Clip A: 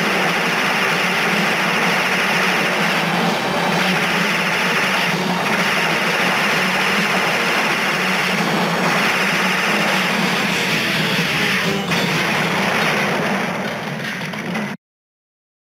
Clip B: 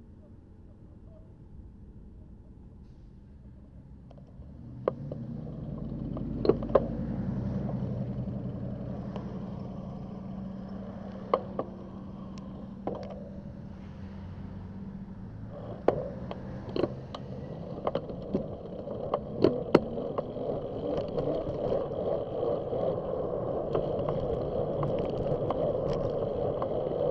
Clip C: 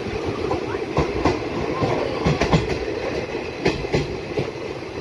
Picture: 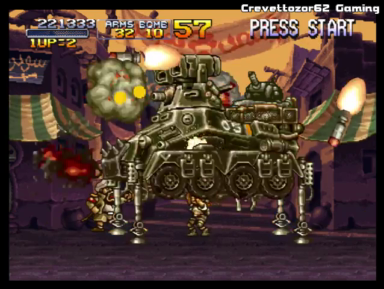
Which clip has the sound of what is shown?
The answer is A